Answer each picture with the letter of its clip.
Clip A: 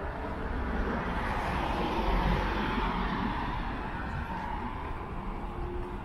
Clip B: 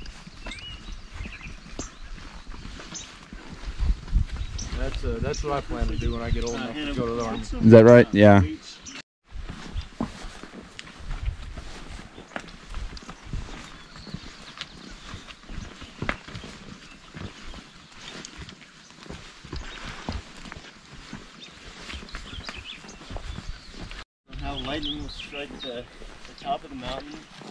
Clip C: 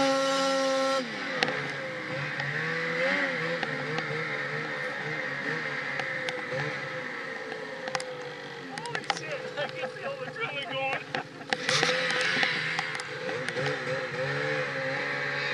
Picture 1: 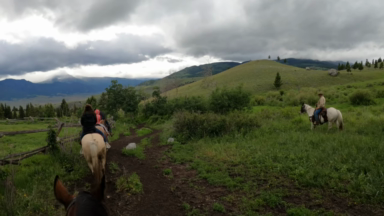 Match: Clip B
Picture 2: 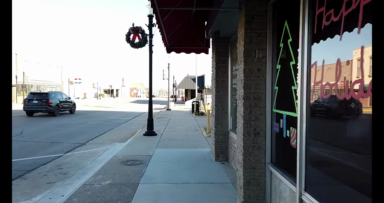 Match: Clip A